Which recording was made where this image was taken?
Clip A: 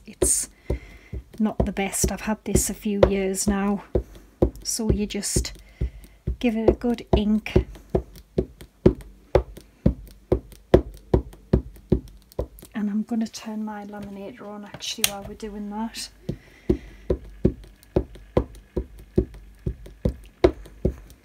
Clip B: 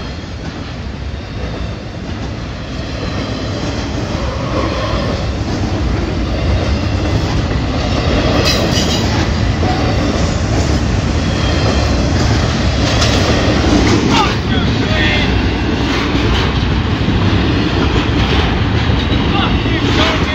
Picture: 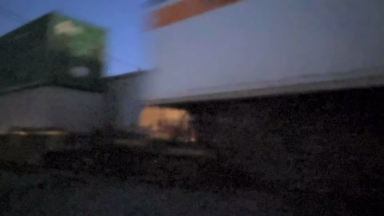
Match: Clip B